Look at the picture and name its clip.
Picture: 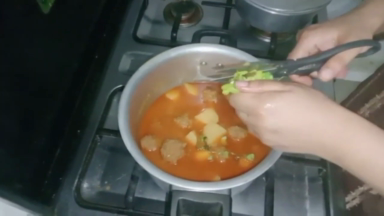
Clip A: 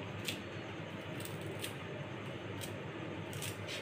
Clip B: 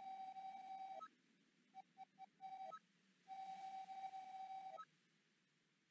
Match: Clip A